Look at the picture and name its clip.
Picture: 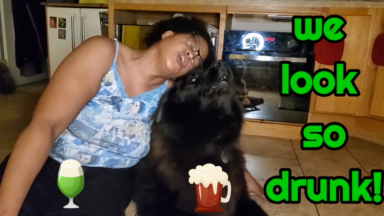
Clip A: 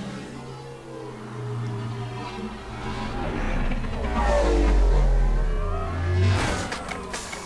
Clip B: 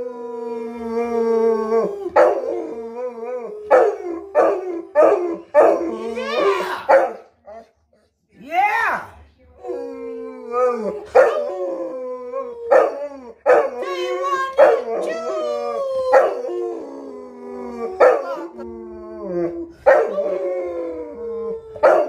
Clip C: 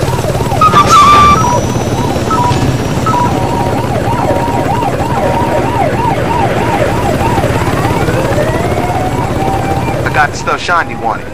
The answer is B